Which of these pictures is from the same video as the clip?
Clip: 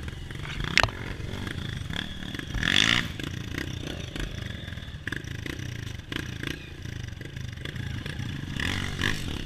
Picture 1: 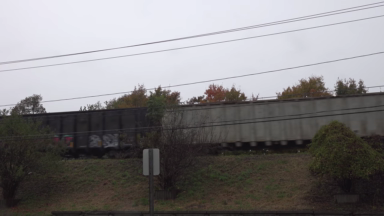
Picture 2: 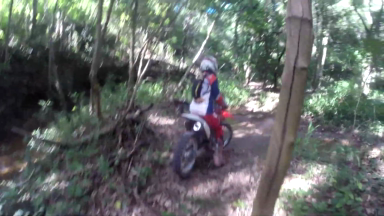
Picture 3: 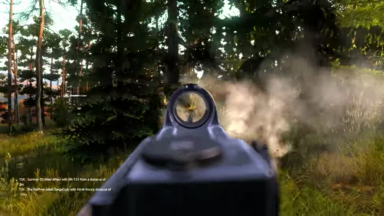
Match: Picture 2